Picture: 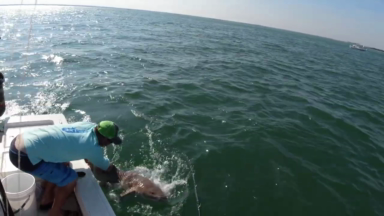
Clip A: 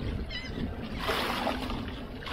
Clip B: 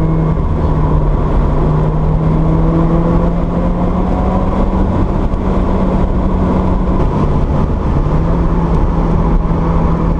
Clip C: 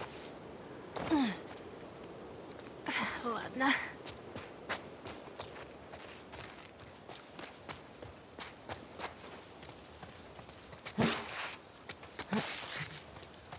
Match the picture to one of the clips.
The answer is A